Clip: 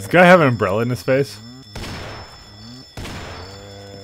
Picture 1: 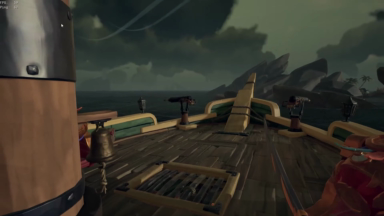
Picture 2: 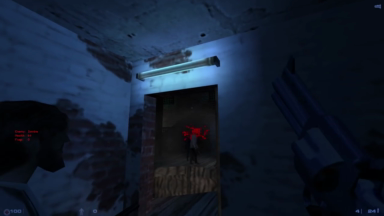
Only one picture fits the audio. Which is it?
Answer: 2